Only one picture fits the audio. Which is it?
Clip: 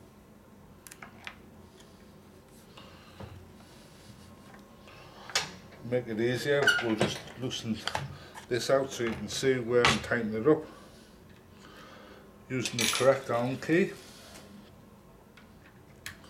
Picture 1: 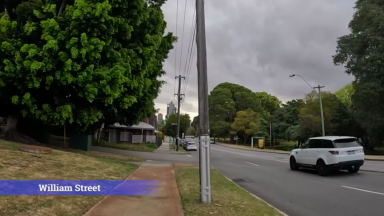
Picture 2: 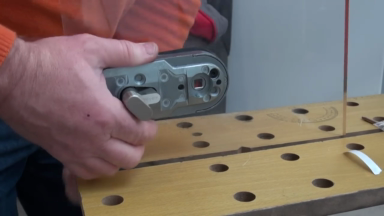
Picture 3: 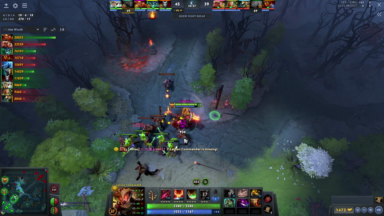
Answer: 2